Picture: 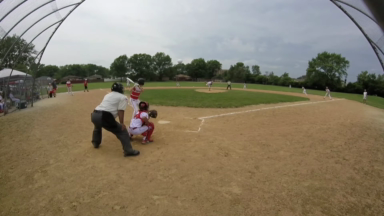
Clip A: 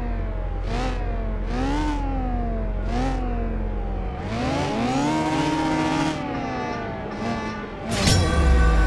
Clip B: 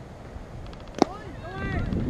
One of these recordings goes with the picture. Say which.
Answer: B